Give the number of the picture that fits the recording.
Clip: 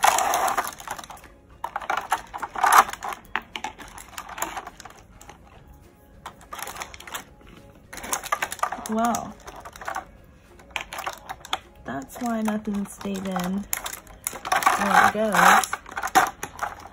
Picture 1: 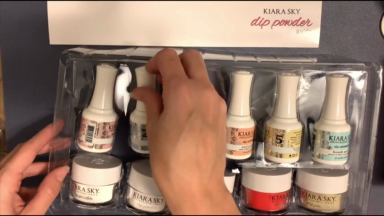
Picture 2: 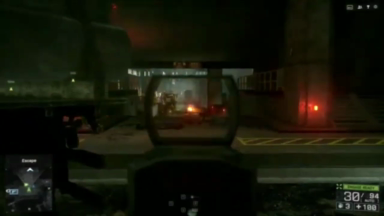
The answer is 1